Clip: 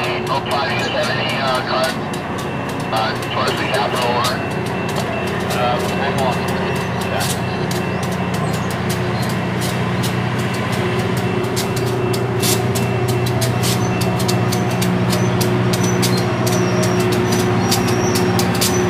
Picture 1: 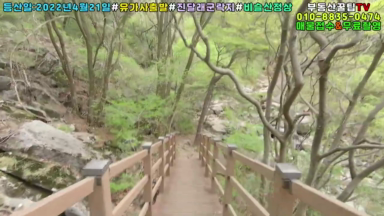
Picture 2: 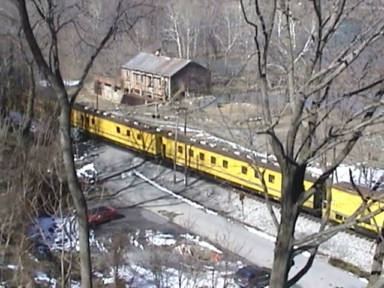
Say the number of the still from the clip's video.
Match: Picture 2